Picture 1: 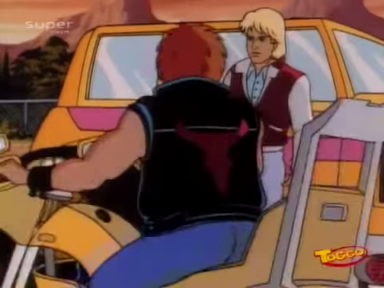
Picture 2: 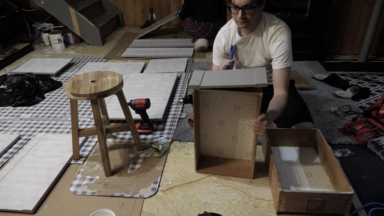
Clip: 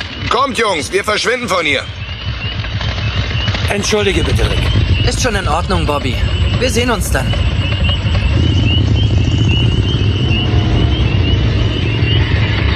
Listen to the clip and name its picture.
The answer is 1